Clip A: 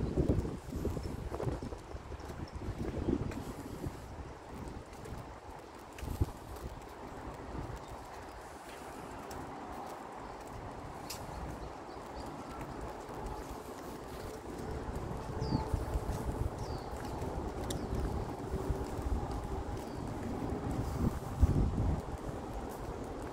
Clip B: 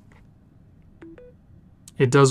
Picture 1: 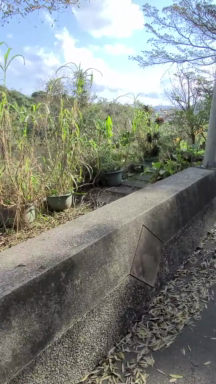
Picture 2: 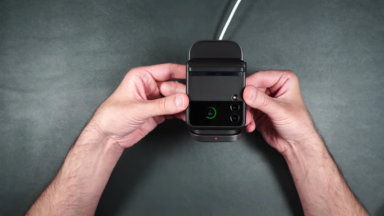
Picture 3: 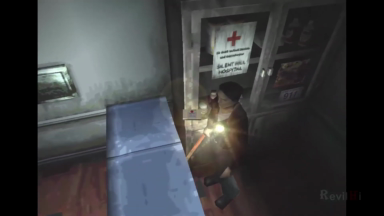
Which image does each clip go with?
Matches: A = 1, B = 2